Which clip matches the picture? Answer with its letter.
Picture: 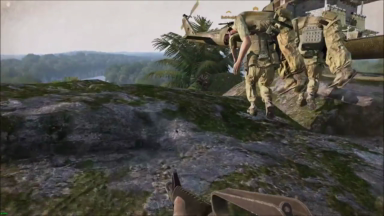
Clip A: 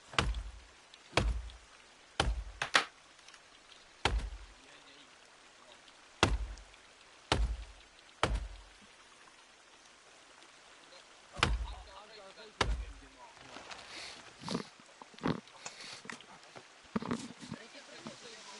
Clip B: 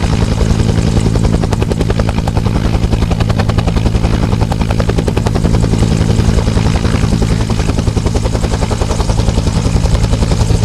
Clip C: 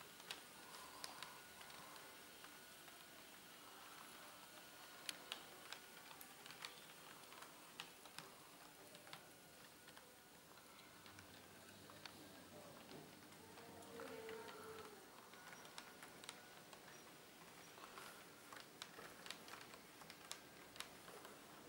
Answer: B